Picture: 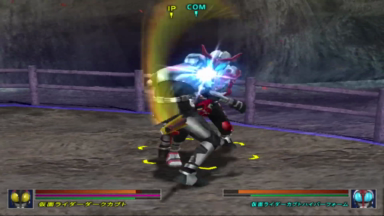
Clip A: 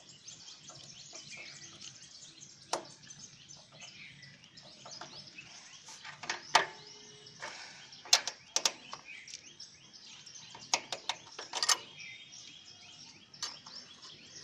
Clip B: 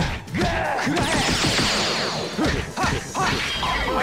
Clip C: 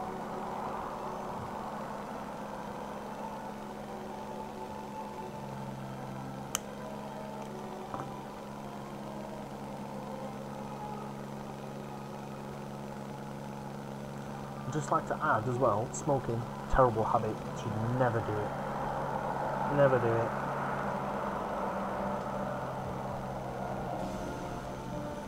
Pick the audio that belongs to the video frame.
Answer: B